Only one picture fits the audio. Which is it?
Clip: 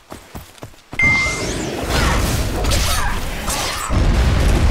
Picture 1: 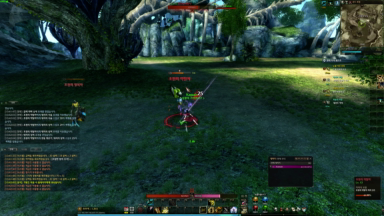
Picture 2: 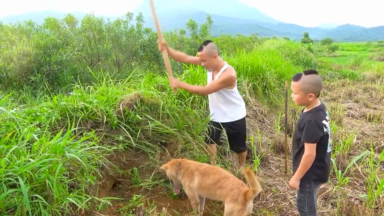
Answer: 1